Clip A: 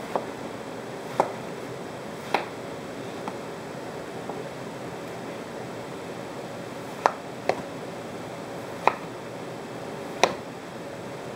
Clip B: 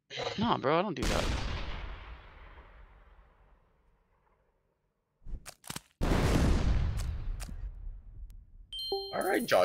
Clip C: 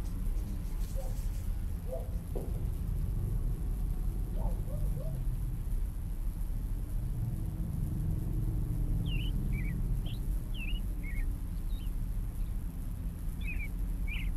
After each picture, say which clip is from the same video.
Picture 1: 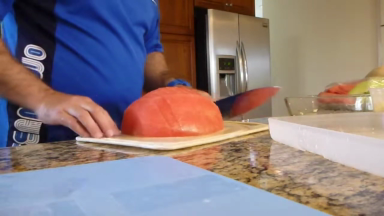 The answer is A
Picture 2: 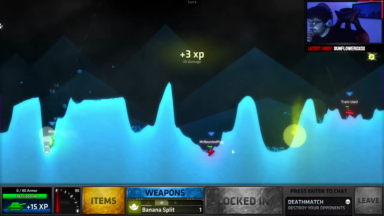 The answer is B